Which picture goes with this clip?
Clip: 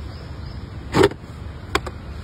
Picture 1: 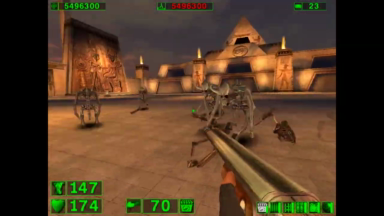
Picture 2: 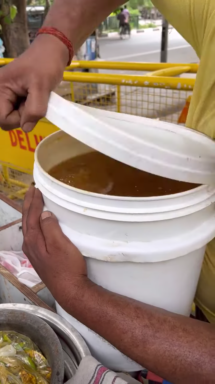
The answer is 2